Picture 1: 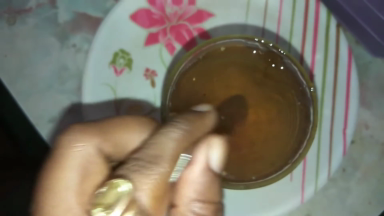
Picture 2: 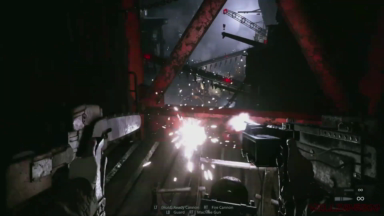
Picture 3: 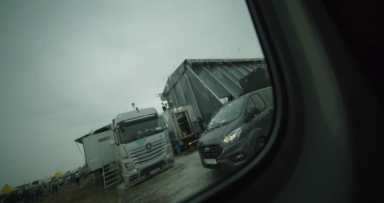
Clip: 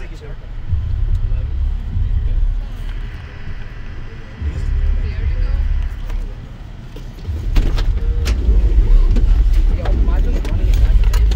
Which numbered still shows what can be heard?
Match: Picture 3